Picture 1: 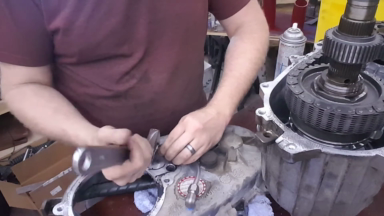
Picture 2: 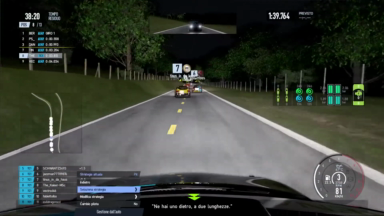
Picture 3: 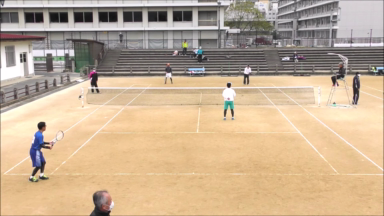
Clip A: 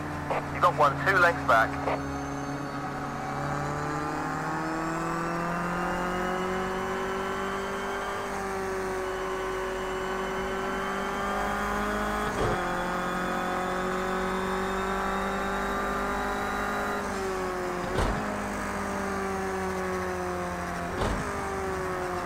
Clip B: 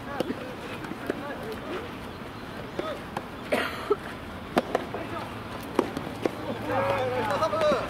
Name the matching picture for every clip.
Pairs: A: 2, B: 3